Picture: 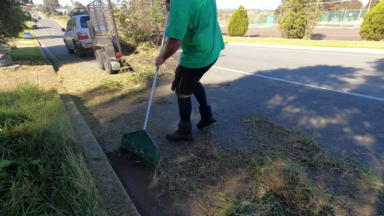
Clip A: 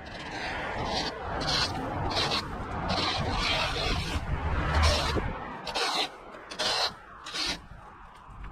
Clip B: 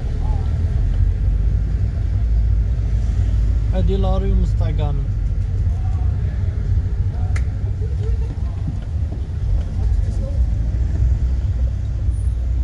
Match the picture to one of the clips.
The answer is A